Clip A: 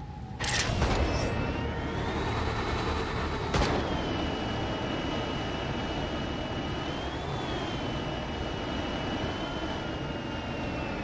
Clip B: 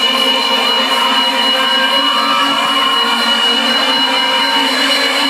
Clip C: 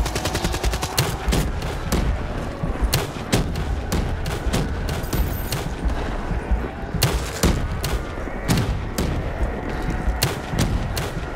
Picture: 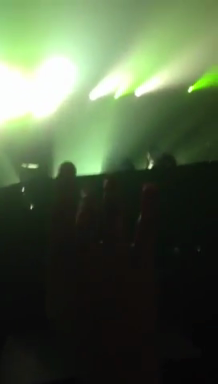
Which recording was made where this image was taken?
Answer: B